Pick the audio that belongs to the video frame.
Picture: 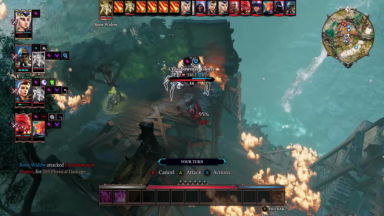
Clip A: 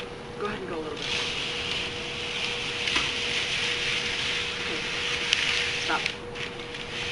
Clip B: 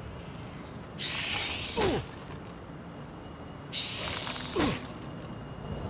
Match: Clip B